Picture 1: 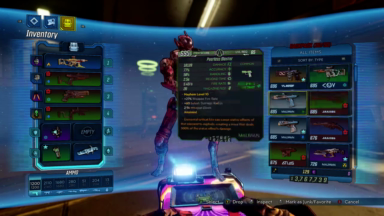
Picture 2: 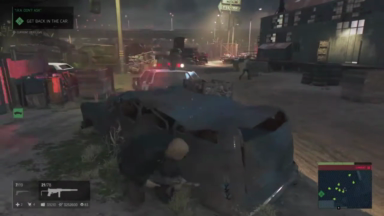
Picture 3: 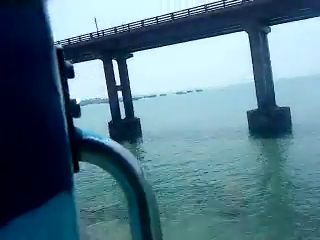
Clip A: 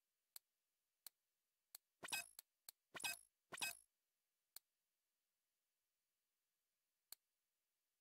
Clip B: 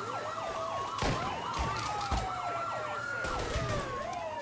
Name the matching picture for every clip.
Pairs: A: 1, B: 2